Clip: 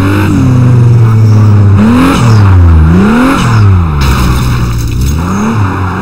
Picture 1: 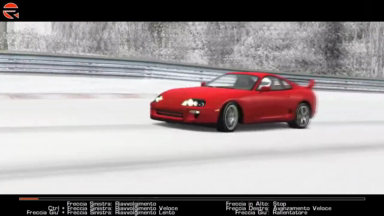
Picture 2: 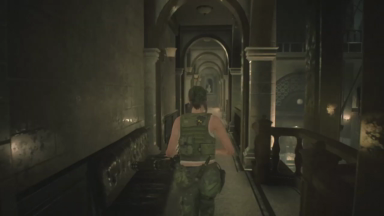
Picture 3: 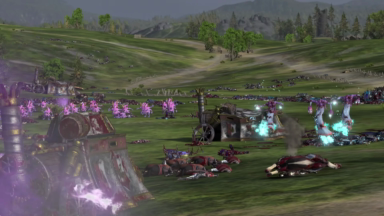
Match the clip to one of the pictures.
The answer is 1